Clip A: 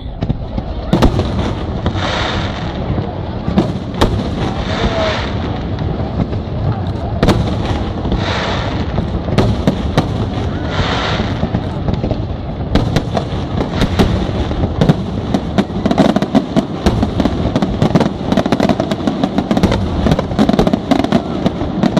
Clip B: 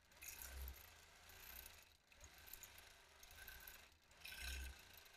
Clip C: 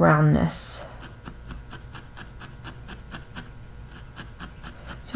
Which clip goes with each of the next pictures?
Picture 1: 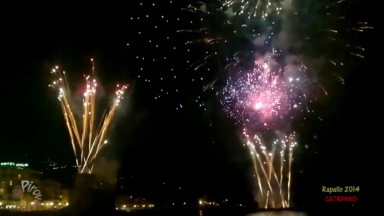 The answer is A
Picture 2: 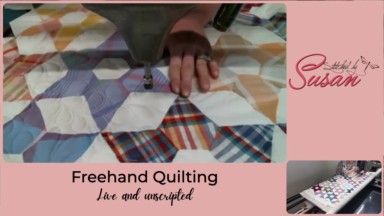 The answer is B